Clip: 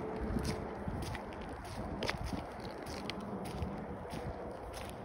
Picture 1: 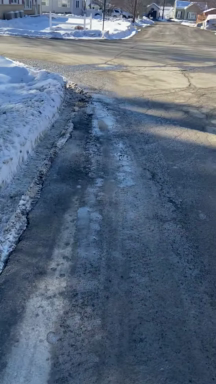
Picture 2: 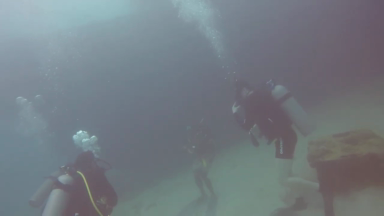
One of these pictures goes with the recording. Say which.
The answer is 1